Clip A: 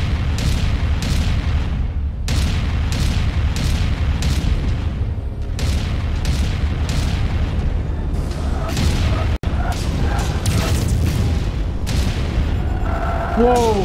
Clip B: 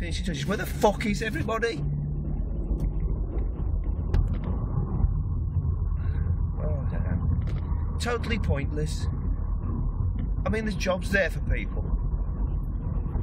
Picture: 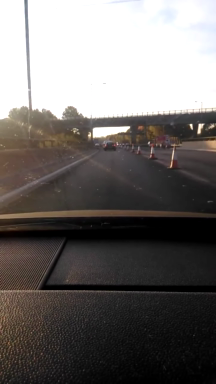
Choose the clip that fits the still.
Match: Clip B